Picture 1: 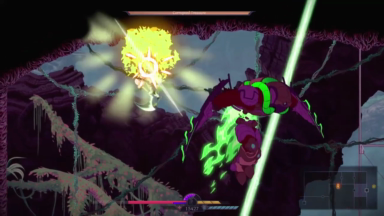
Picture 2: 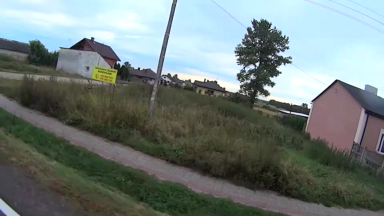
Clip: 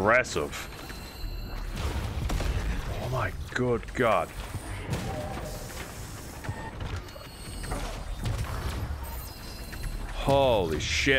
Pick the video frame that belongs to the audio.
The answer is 1